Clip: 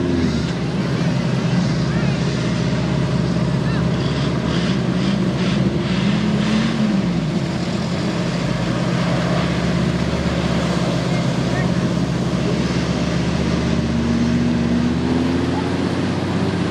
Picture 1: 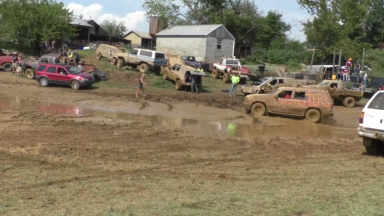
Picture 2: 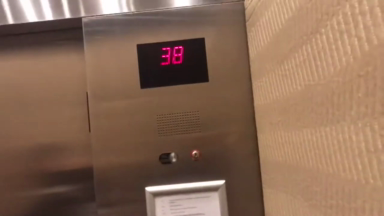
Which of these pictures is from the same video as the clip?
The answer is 1